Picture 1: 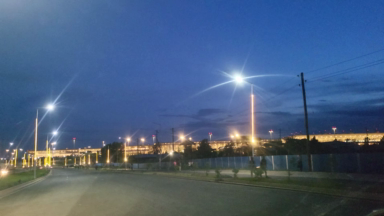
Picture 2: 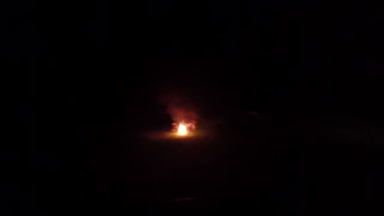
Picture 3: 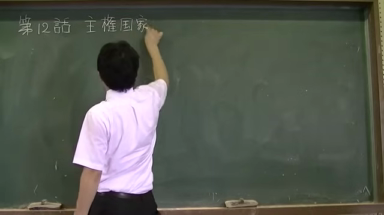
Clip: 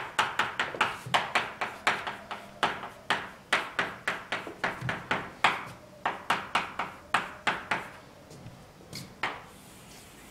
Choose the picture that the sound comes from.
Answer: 3